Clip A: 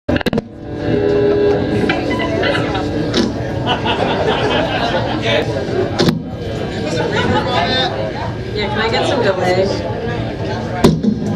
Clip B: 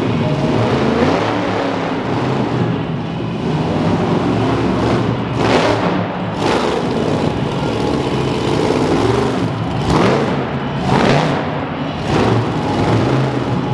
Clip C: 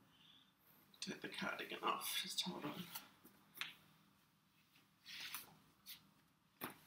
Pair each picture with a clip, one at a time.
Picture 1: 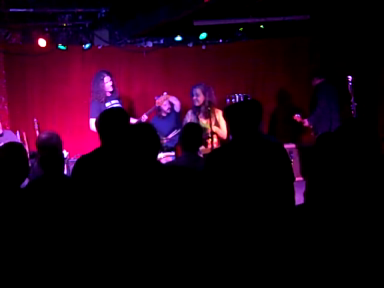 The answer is A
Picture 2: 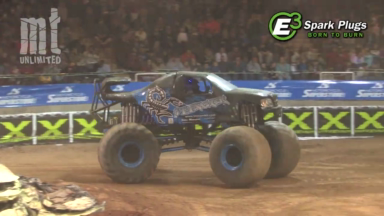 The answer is B